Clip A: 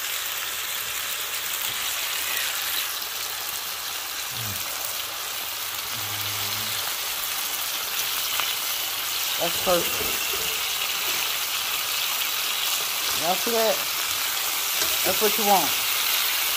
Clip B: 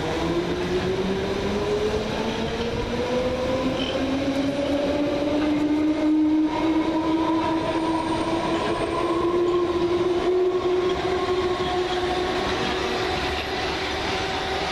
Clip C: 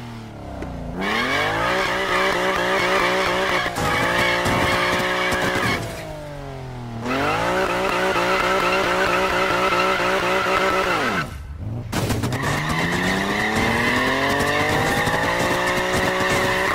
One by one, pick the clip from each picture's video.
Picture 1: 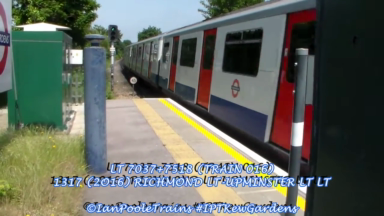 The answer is B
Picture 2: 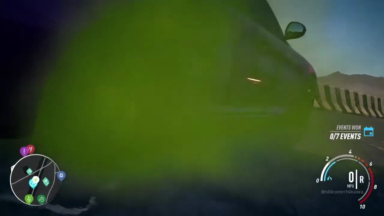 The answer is C